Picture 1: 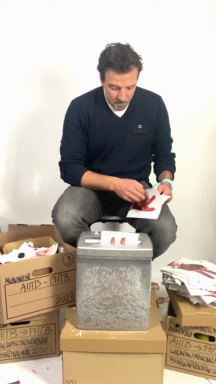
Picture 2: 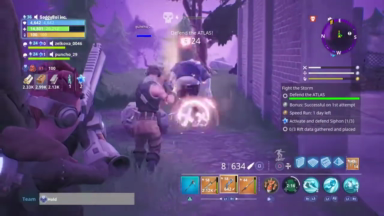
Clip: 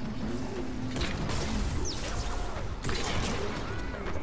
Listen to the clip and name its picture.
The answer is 2